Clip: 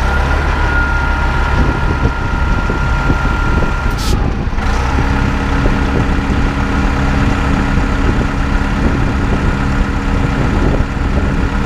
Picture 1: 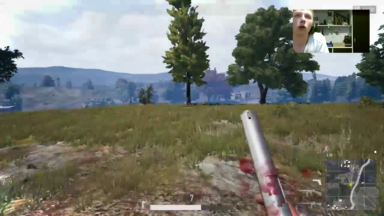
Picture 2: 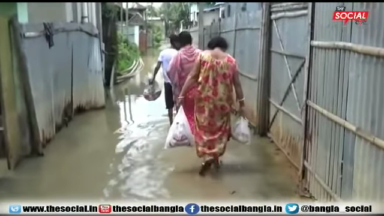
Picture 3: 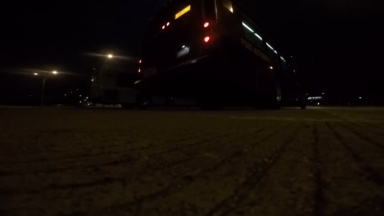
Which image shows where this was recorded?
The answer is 3